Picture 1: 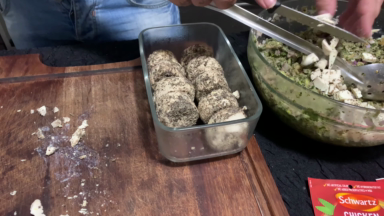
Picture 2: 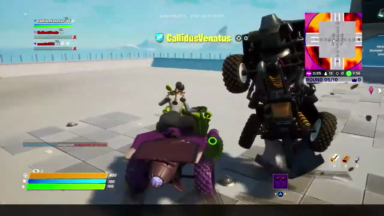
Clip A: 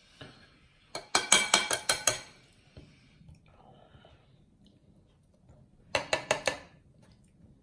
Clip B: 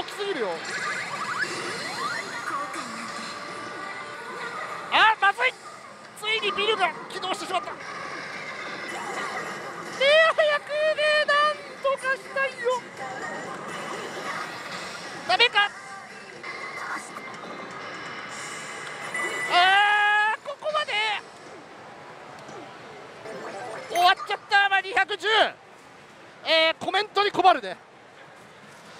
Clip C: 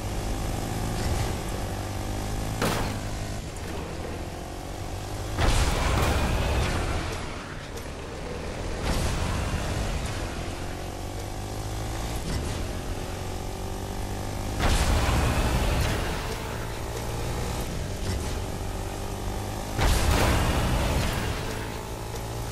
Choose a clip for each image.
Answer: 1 A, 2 C